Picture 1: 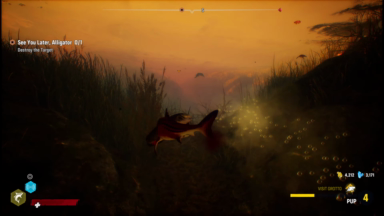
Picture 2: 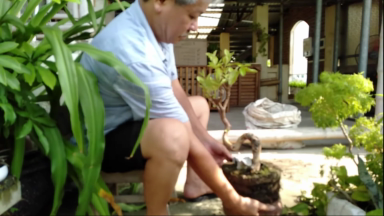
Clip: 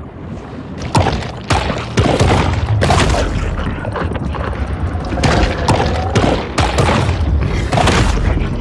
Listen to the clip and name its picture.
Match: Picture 1